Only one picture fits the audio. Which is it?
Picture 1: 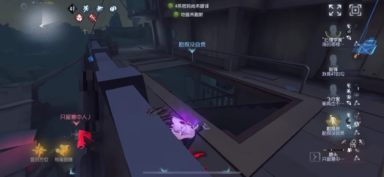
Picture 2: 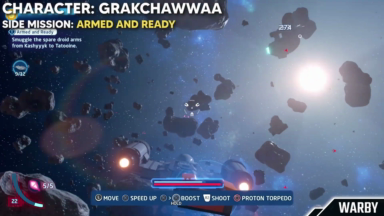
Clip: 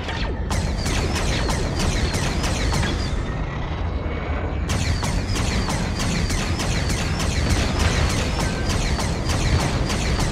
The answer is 2